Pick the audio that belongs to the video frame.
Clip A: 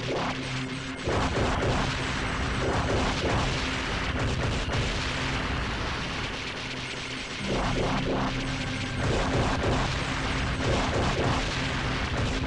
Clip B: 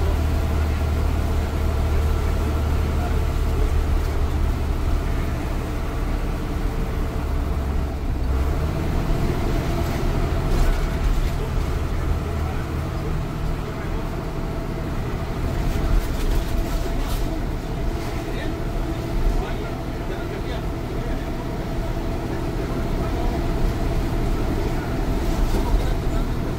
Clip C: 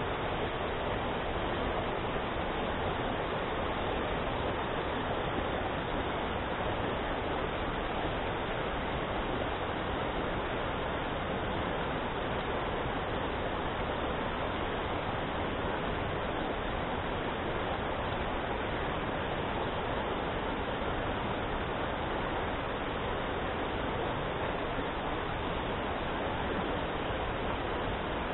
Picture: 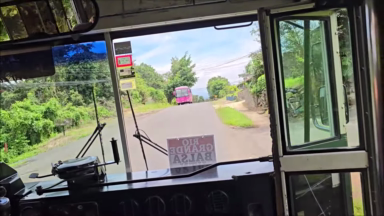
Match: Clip B